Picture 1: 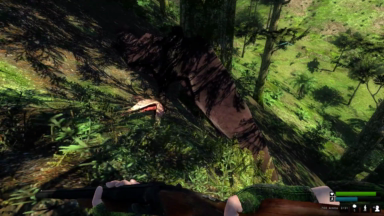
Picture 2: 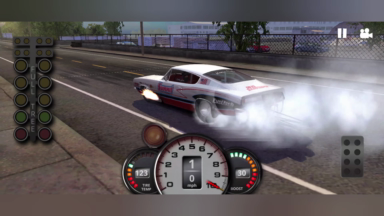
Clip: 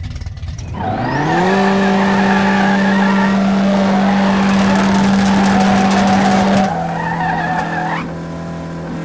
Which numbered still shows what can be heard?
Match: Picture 2